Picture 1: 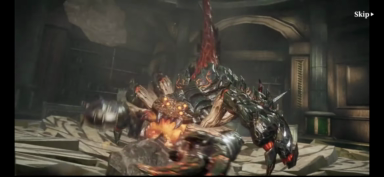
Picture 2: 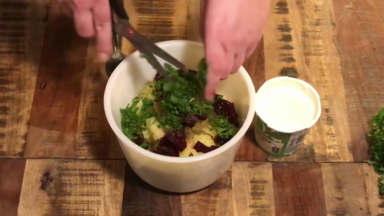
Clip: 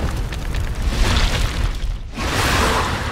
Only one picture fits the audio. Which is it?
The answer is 1